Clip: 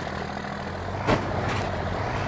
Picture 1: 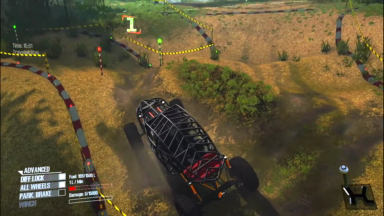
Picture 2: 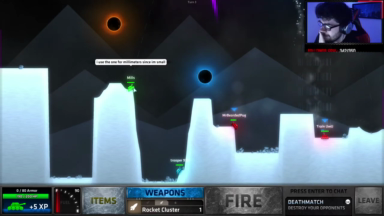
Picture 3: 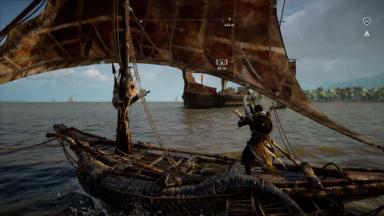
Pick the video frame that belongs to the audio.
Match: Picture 1